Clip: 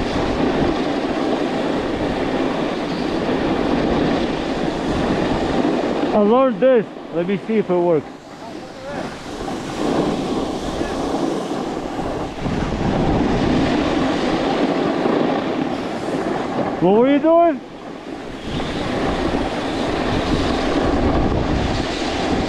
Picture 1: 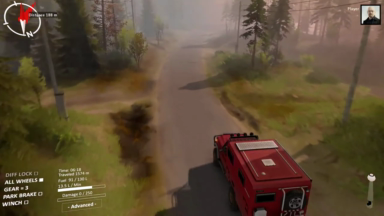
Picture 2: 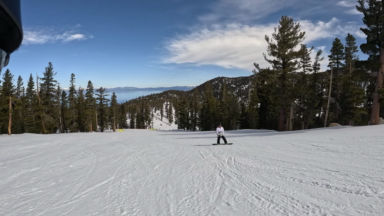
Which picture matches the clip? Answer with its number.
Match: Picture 2